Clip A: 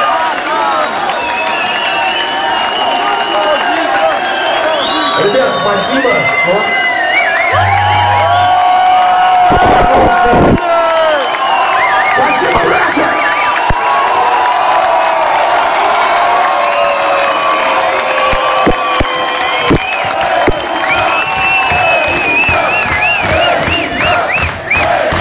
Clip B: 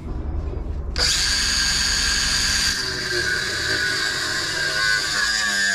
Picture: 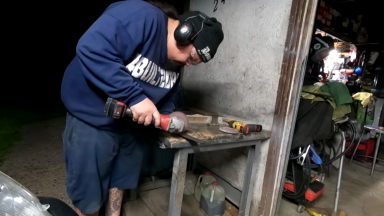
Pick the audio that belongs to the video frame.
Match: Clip B